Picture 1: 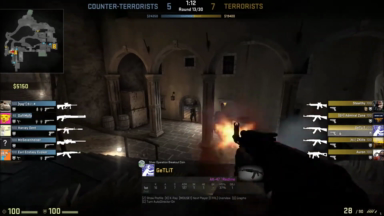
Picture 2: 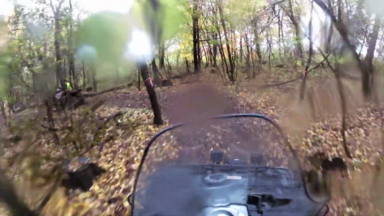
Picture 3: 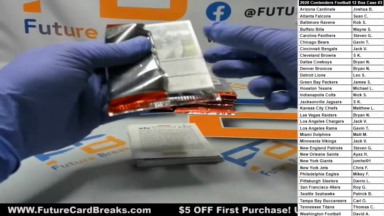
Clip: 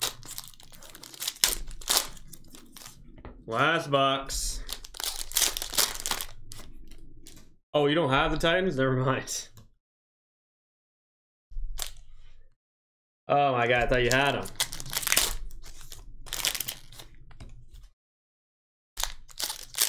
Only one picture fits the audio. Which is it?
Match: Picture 3